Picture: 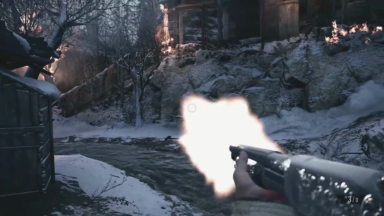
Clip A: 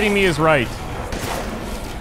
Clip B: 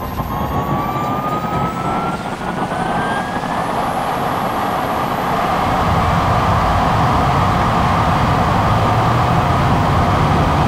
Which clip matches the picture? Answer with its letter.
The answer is A